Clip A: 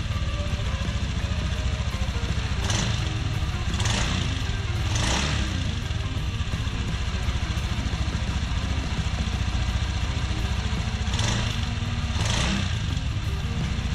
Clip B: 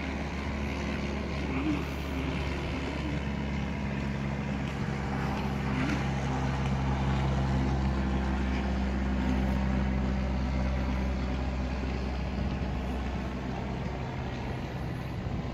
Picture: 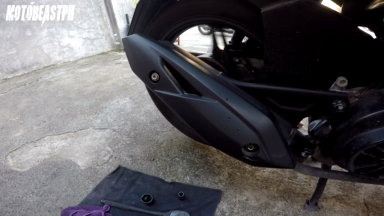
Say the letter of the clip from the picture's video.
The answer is A